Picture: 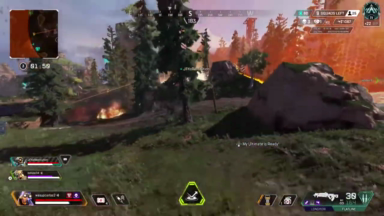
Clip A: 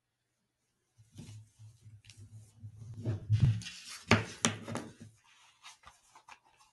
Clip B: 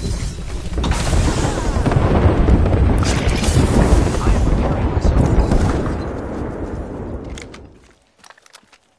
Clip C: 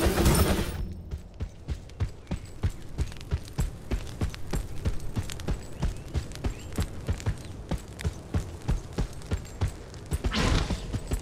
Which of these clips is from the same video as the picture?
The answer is B